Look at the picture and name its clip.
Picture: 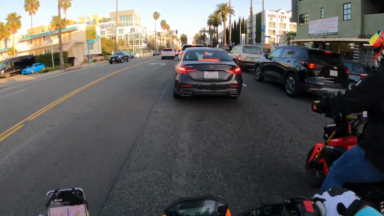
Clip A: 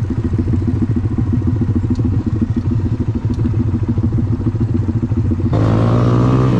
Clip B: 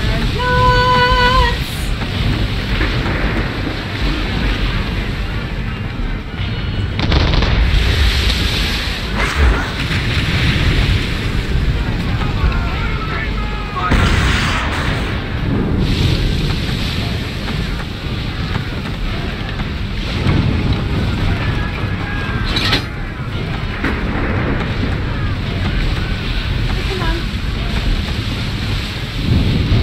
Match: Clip A